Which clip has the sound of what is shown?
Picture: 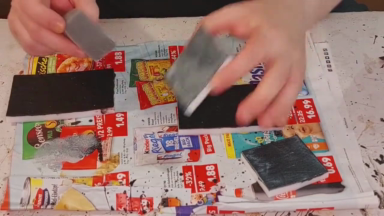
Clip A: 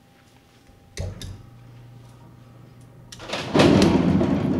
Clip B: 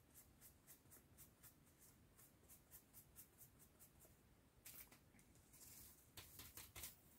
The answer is B